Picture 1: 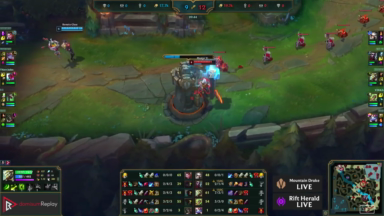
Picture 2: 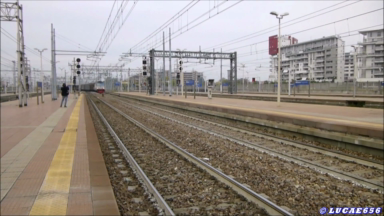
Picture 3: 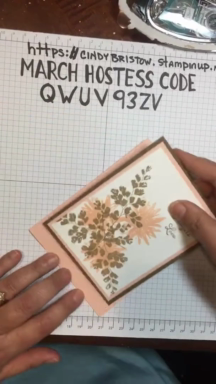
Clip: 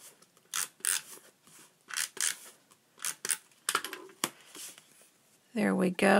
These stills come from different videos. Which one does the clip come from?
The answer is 3